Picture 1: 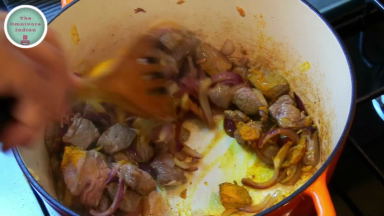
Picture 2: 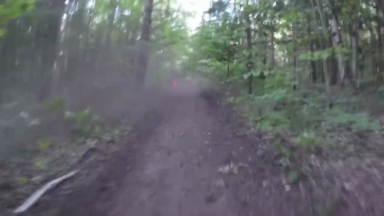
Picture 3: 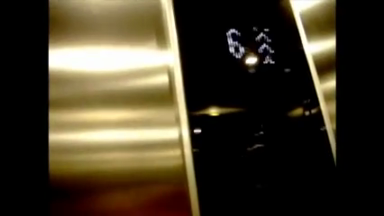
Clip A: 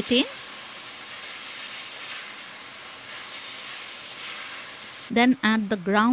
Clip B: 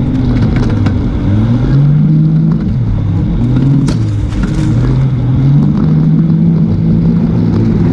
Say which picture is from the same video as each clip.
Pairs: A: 1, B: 2